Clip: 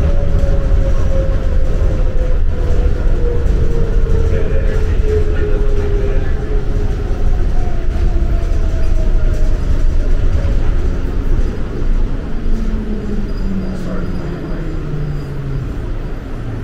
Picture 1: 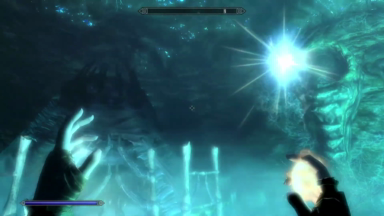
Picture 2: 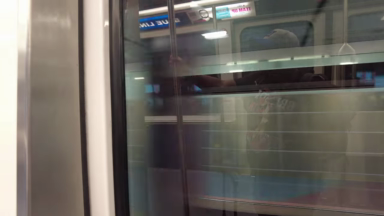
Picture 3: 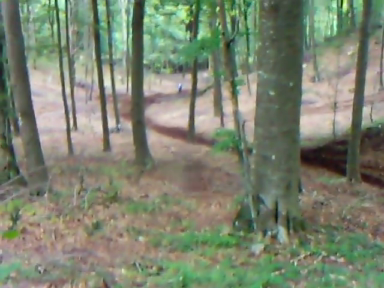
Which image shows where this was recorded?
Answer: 2